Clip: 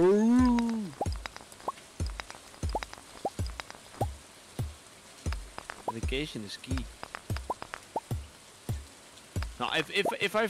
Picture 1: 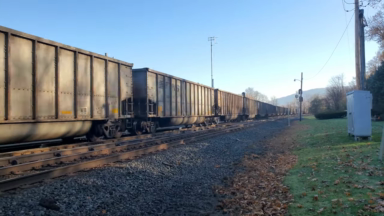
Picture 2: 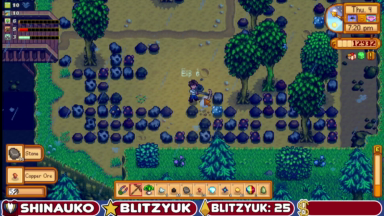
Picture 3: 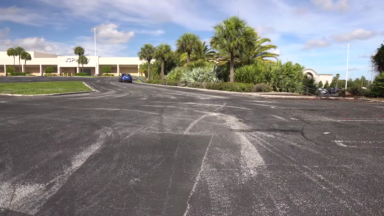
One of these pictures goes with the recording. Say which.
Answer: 2